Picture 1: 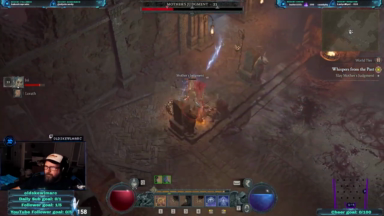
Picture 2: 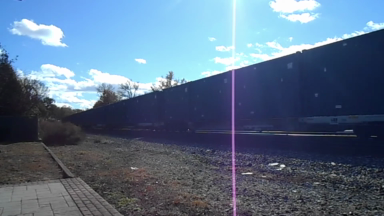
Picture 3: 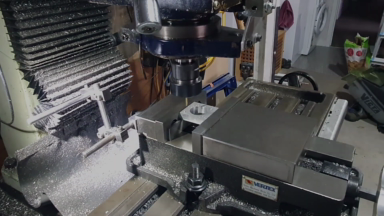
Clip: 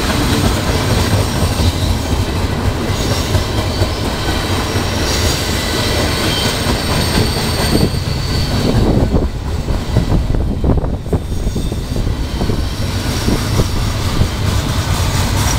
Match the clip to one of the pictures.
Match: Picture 2